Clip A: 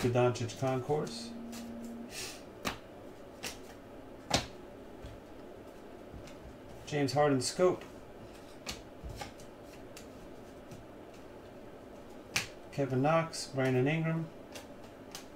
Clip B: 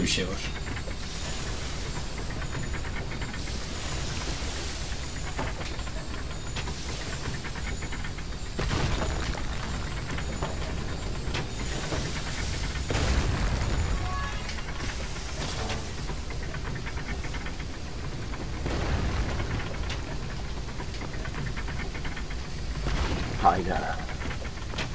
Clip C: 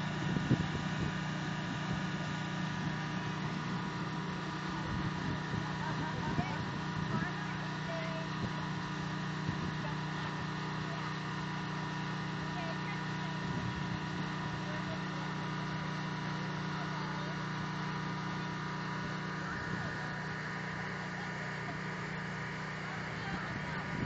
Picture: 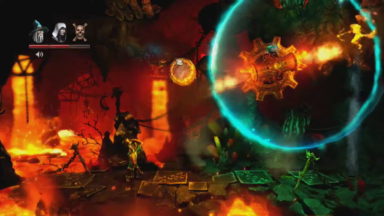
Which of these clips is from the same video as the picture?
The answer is B